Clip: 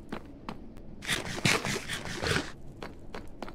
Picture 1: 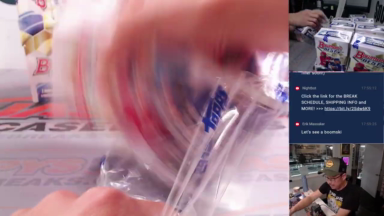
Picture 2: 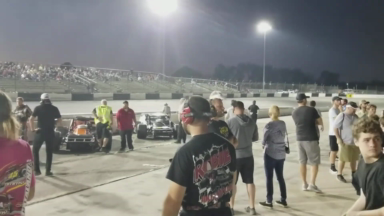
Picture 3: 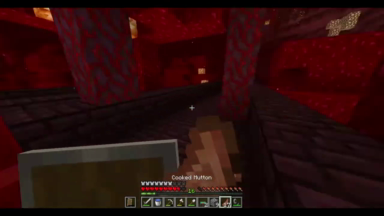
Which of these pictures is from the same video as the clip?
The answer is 3